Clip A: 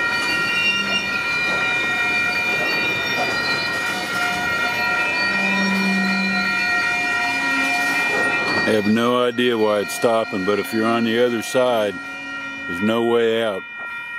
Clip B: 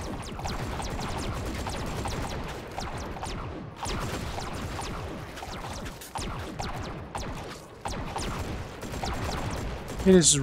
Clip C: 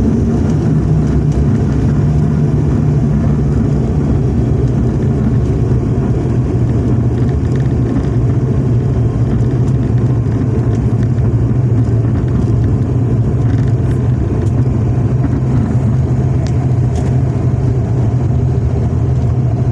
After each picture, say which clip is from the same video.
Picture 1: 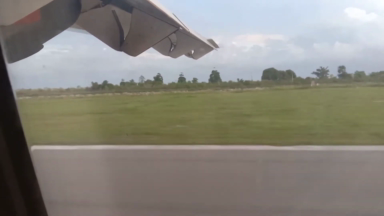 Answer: C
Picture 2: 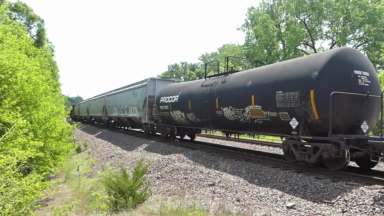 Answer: A